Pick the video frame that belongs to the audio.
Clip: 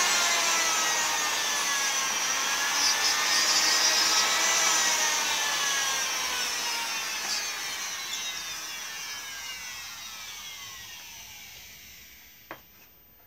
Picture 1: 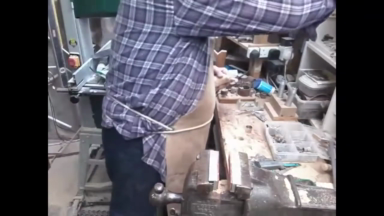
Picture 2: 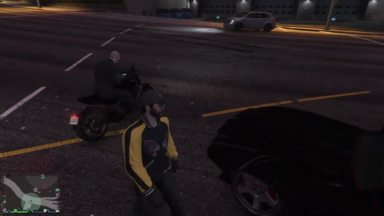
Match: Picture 1